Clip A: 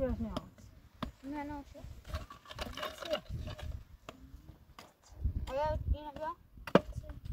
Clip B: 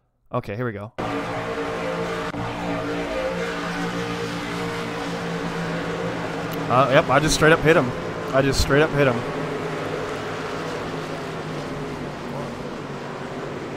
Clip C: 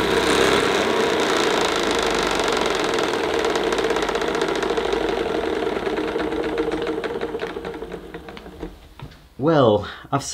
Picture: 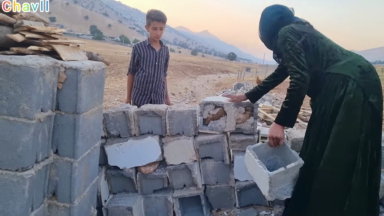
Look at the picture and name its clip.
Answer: A